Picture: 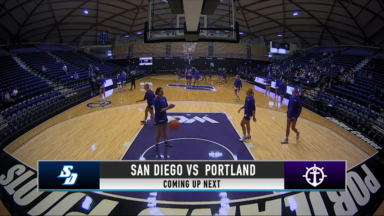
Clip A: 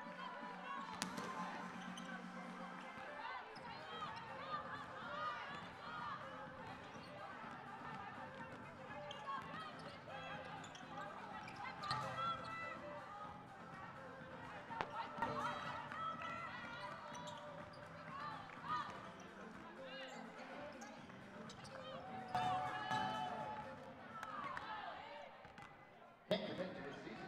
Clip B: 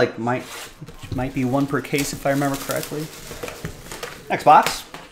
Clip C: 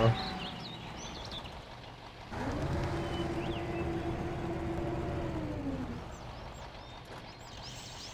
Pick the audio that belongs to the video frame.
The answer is A